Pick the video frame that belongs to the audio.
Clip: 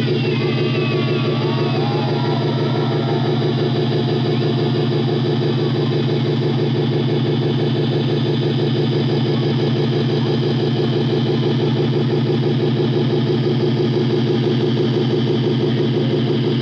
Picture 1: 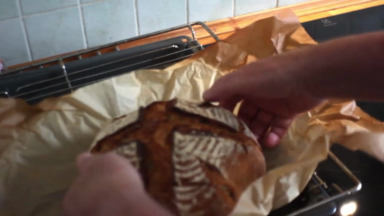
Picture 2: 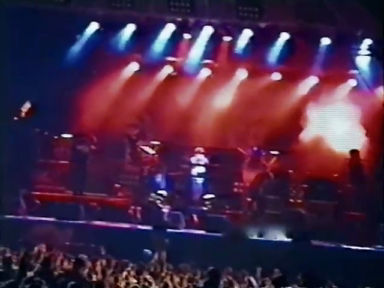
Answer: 2